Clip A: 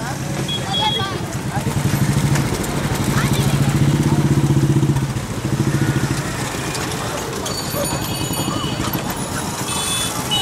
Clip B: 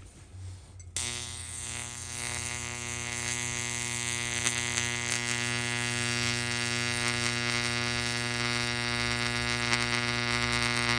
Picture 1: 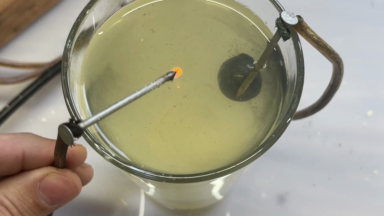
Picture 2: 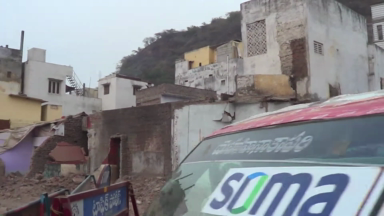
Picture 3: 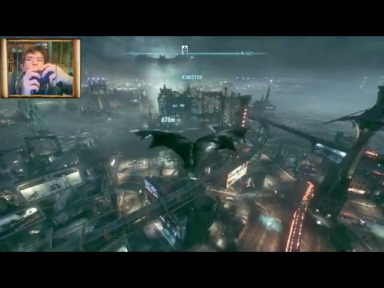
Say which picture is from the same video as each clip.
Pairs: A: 2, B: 1